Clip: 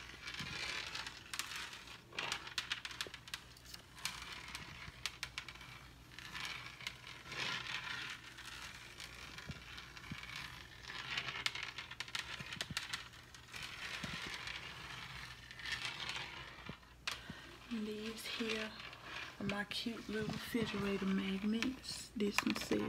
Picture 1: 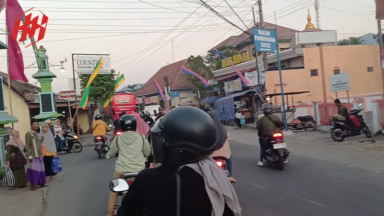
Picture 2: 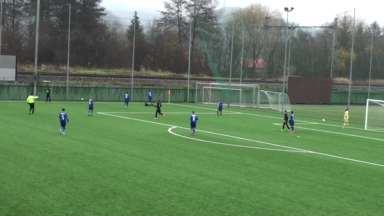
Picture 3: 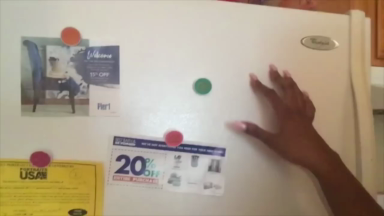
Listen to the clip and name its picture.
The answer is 3